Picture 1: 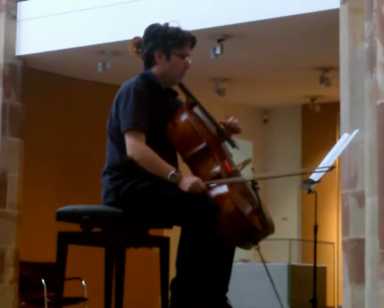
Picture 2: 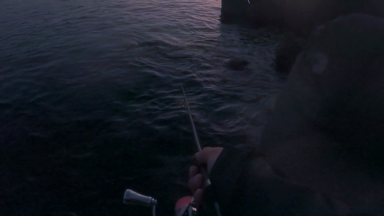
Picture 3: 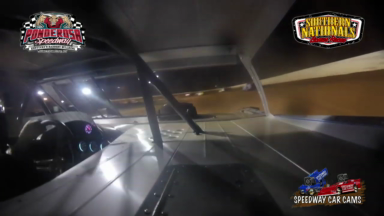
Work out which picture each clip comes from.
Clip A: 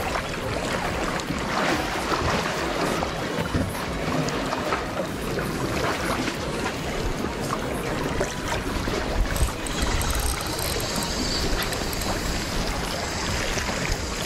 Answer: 2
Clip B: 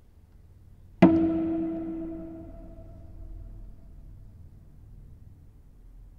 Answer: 1